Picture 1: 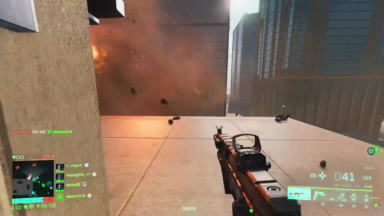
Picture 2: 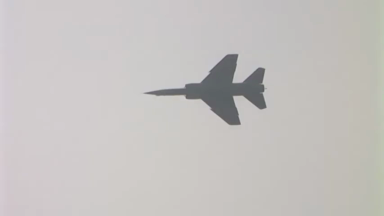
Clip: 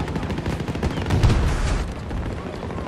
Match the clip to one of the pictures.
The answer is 1